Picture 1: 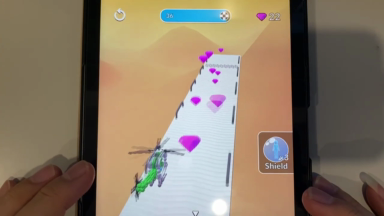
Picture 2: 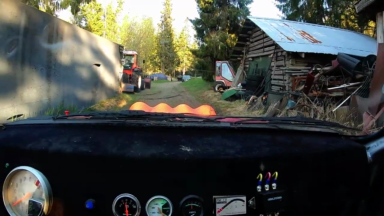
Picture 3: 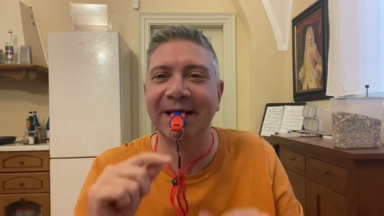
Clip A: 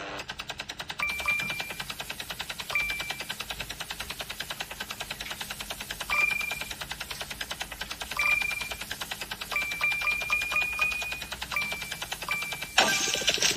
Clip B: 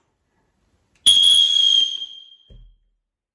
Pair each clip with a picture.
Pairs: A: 1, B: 3